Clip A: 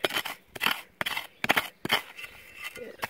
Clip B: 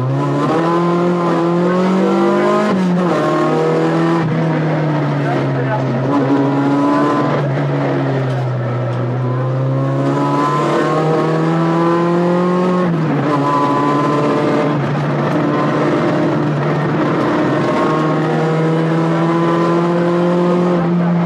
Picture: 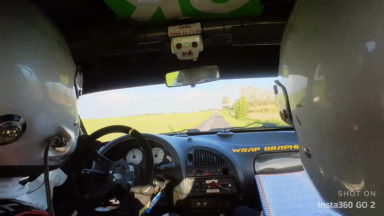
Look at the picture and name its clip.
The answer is B